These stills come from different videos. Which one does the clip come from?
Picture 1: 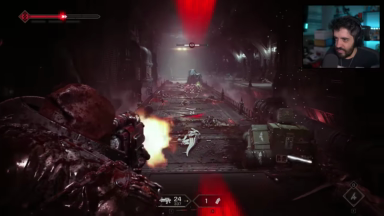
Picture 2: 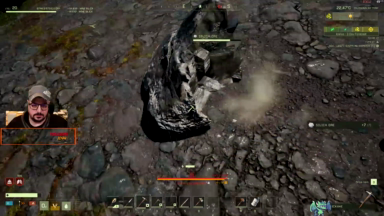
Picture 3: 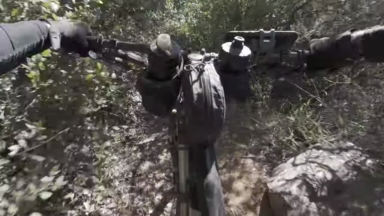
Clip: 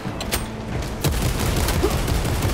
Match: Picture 1